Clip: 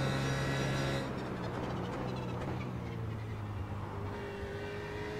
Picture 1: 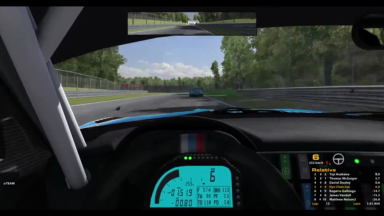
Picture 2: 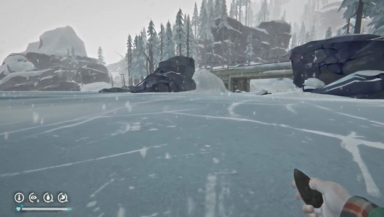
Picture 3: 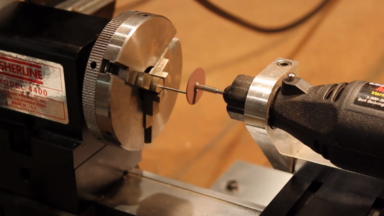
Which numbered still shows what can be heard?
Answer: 1